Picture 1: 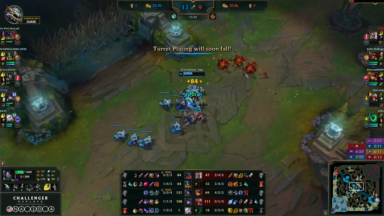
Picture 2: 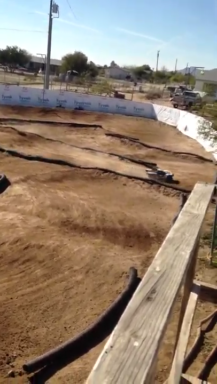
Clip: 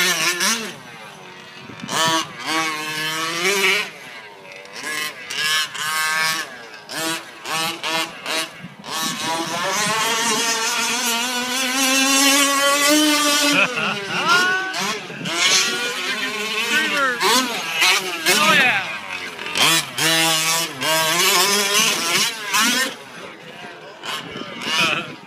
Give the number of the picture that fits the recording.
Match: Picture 2